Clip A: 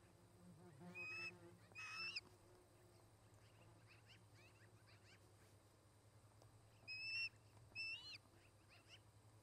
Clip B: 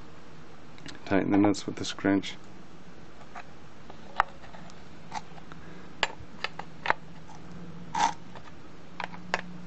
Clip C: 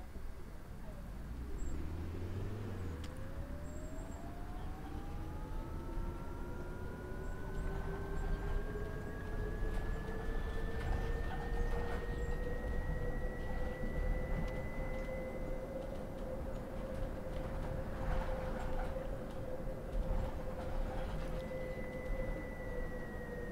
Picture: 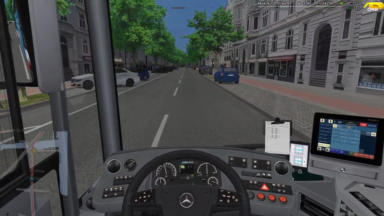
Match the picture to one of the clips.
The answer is C